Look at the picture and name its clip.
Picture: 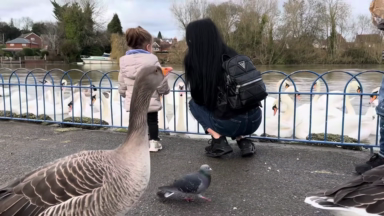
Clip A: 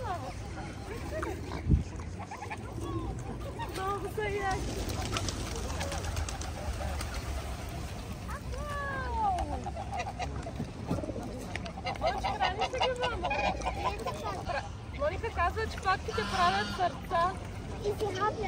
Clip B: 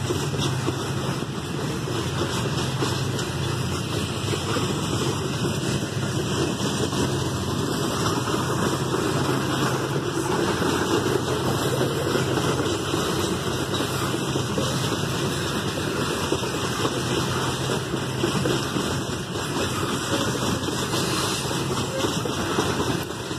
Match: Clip A